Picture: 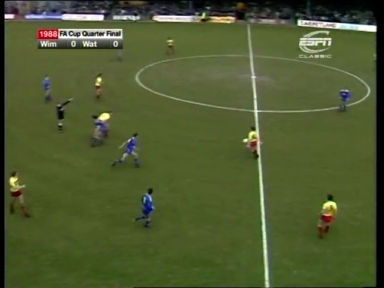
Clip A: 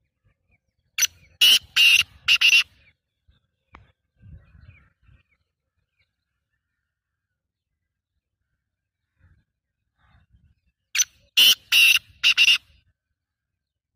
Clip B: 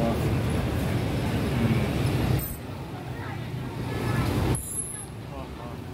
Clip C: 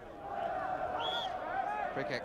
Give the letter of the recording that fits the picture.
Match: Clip C